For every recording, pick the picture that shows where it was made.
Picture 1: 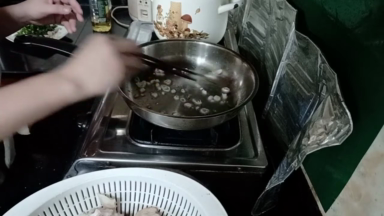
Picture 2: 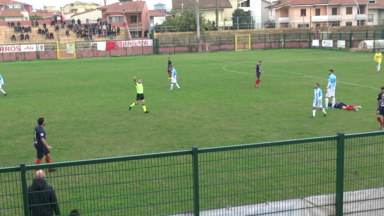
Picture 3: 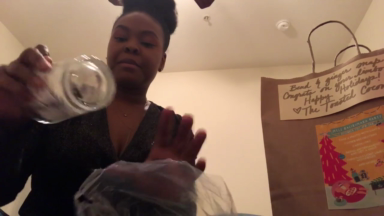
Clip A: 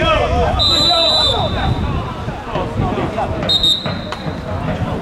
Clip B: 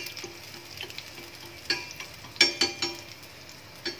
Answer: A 2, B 1